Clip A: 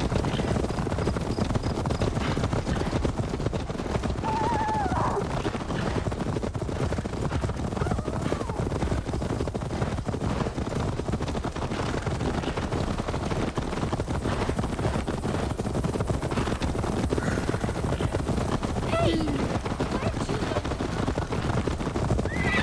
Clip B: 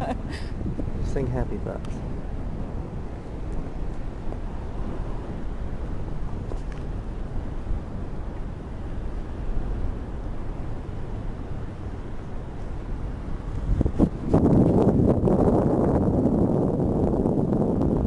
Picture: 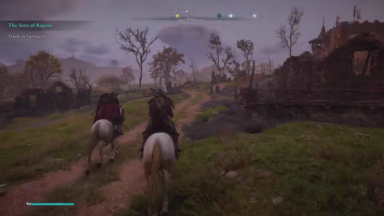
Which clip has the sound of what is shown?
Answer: A